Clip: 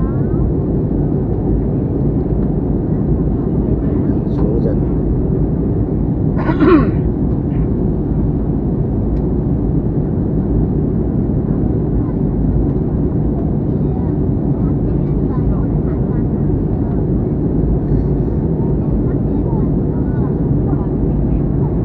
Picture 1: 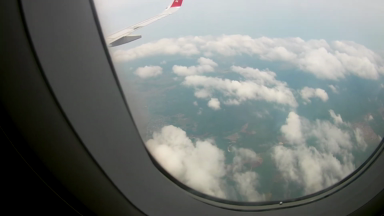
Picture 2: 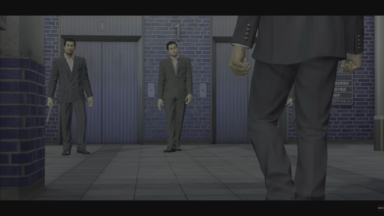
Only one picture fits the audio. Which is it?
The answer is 1